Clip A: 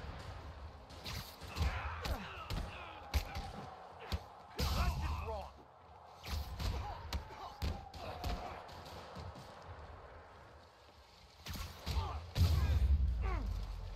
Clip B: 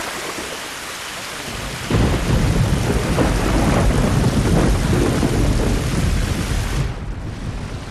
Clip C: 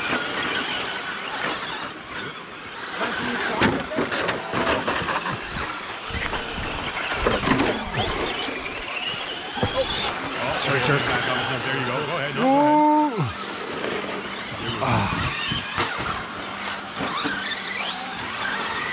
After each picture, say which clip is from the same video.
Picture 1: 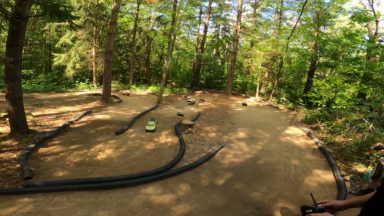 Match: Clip C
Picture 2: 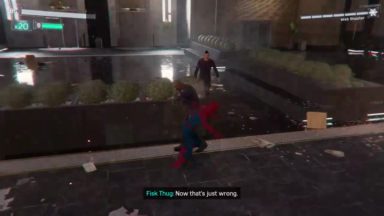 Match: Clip A